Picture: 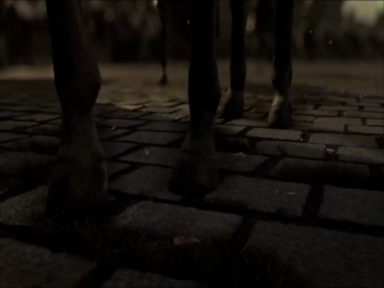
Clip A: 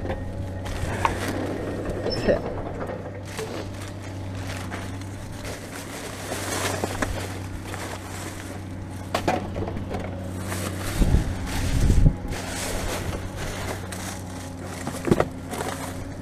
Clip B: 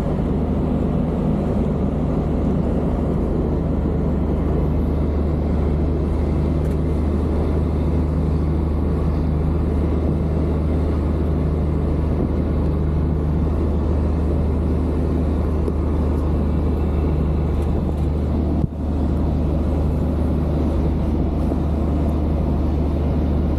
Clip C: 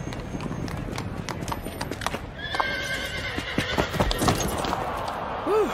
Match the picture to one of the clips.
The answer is C